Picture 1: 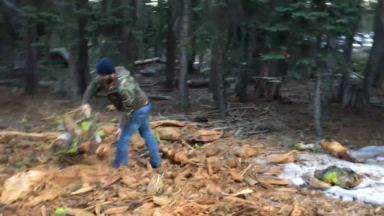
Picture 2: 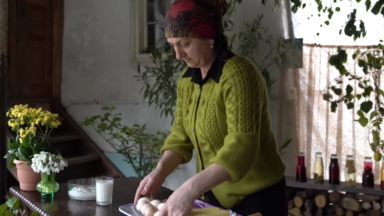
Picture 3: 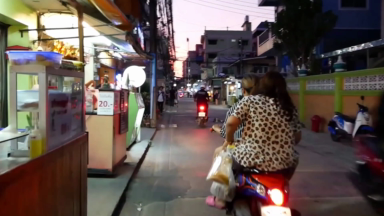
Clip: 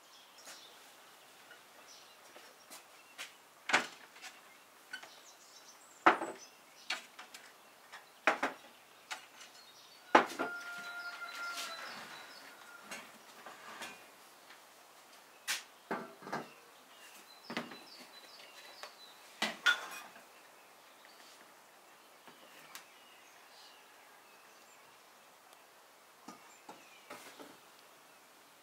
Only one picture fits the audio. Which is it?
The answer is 2